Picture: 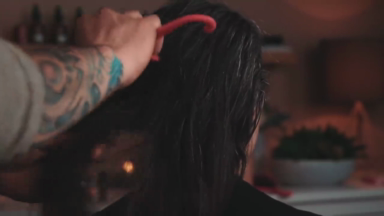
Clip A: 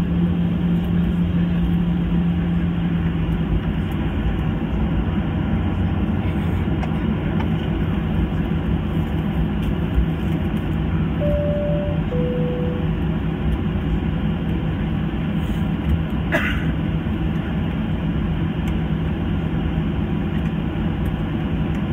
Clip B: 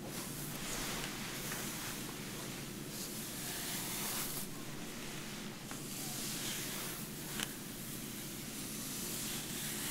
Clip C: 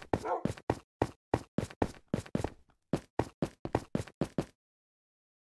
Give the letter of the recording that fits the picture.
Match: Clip B